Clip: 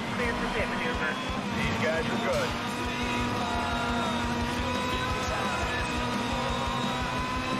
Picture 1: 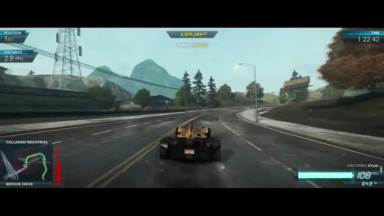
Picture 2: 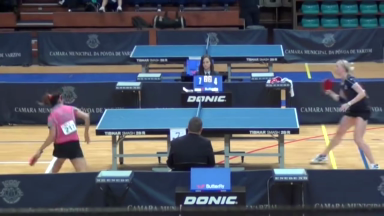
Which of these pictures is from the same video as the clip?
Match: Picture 1